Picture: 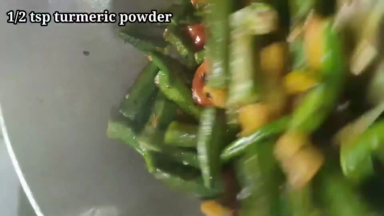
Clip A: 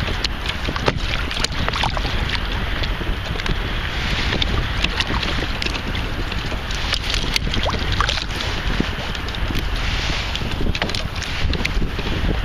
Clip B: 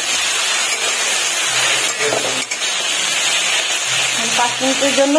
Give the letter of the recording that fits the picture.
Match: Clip B